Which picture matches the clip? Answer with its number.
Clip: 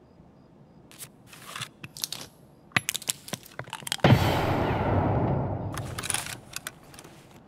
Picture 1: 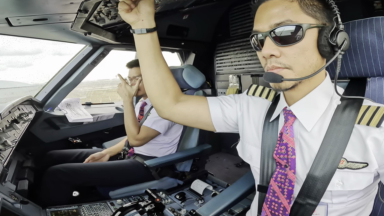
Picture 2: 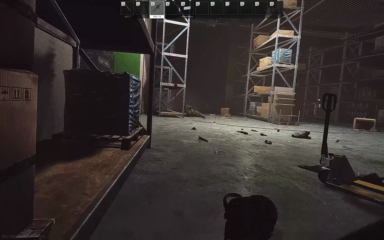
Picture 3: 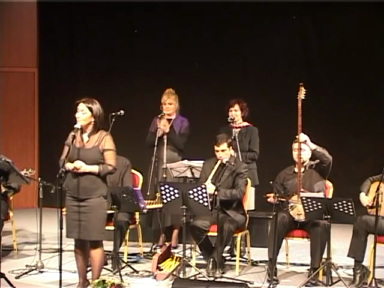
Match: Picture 2